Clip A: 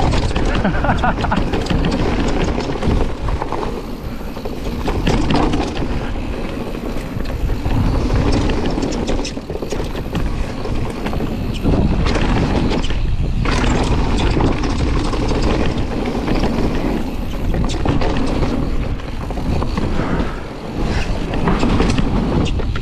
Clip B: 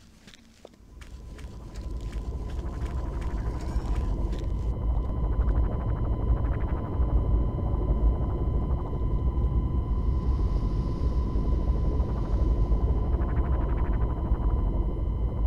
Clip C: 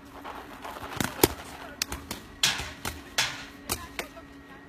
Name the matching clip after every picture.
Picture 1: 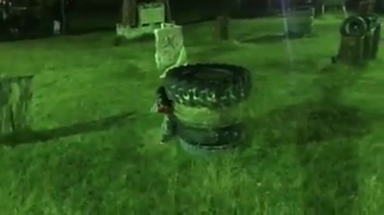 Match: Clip C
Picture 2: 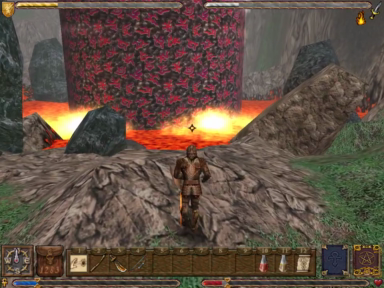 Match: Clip B